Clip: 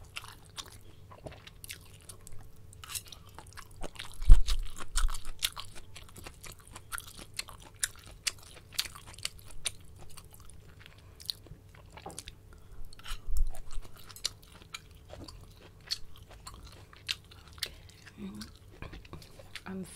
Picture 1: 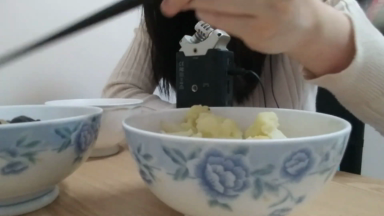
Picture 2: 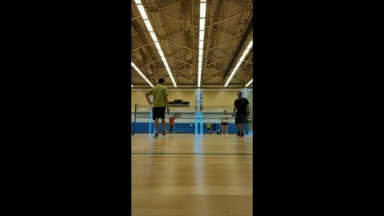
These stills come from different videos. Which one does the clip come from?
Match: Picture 1